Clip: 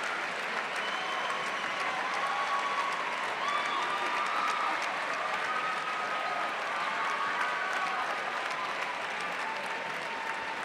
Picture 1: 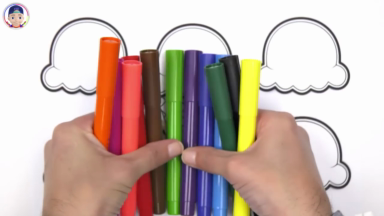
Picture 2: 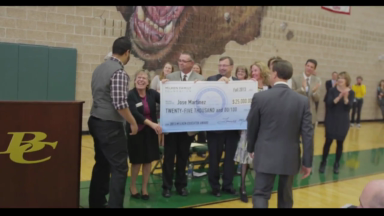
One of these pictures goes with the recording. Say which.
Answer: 2